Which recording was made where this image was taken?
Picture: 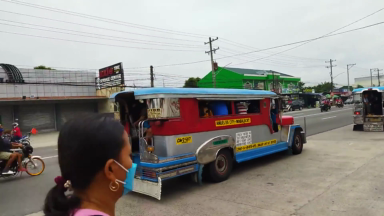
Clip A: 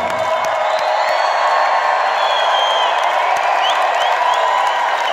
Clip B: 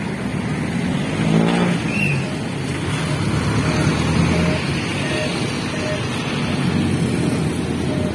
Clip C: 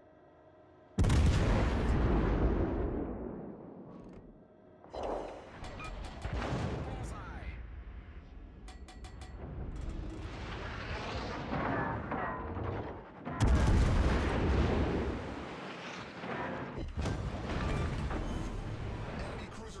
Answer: B